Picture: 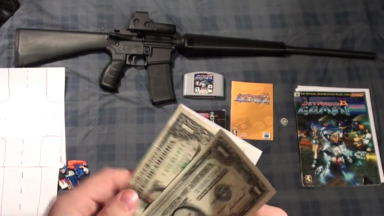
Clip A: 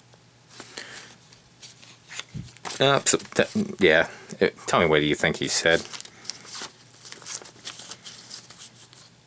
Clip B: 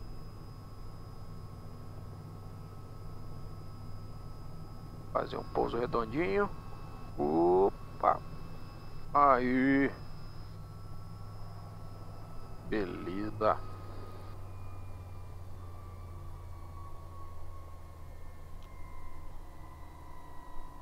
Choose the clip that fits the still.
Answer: A